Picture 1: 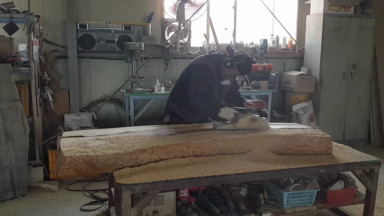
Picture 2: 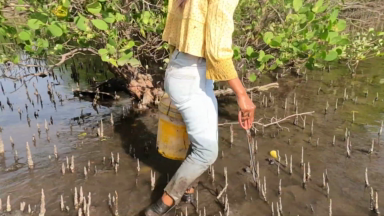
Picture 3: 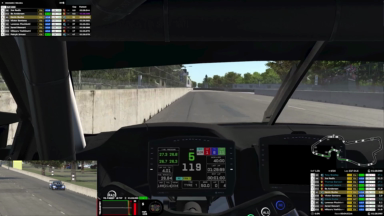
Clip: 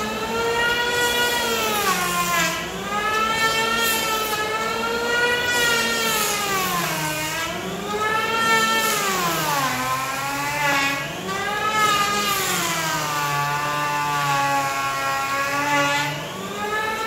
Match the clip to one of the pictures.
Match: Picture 1